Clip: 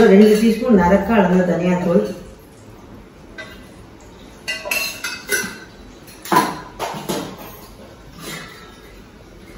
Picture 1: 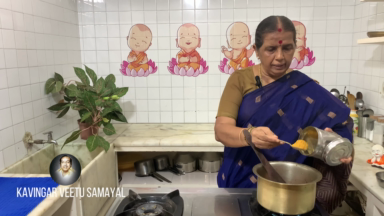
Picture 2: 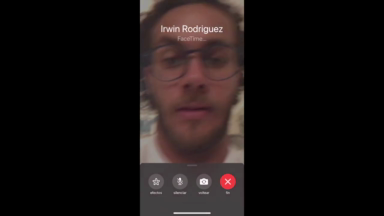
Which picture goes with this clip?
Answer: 1